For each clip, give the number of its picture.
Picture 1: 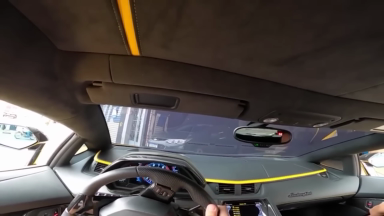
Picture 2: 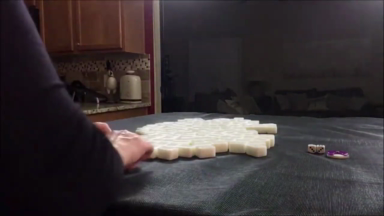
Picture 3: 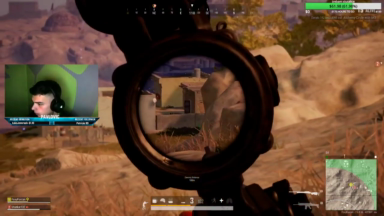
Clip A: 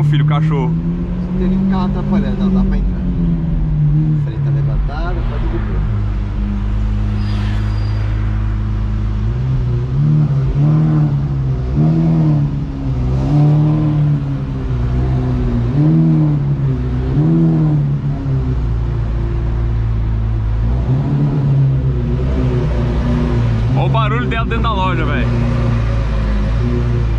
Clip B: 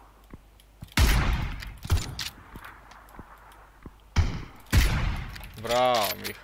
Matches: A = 1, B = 3